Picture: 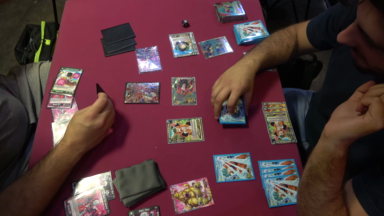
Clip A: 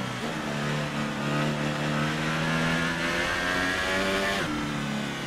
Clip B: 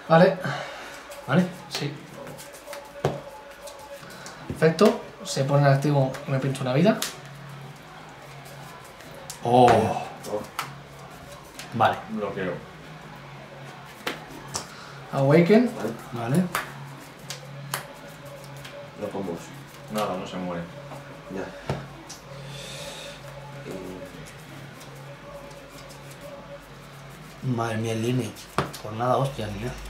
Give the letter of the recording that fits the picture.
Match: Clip B